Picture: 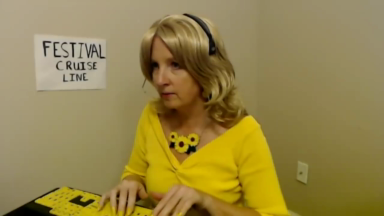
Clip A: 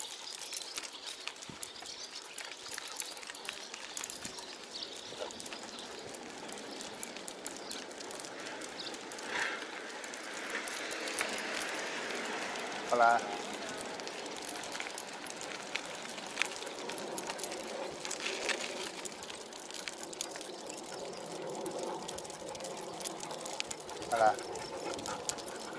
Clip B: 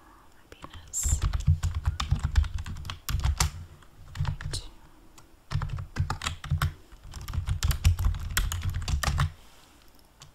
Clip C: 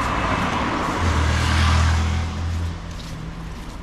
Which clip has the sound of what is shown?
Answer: B